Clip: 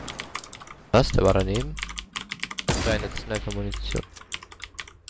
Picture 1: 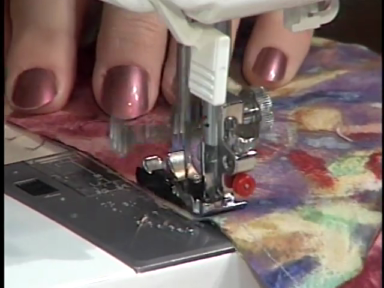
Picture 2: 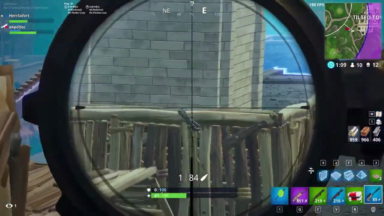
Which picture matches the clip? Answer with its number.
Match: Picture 2